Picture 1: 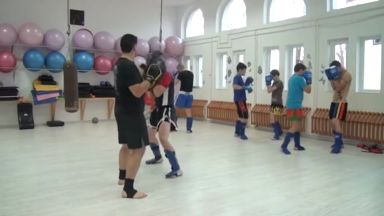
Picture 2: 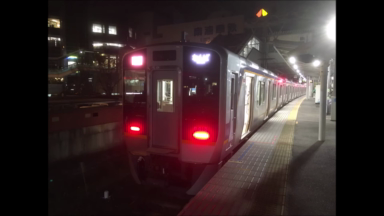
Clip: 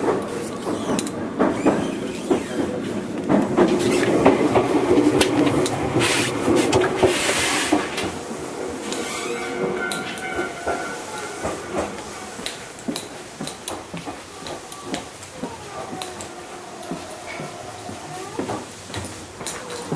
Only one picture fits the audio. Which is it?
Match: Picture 2